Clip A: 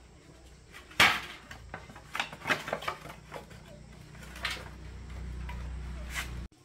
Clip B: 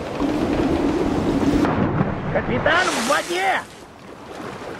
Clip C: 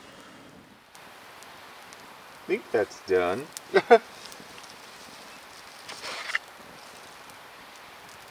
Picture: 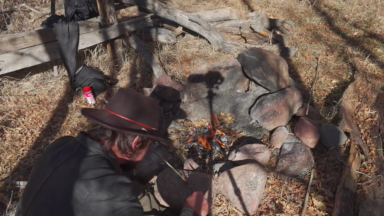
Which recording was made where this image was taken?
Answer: C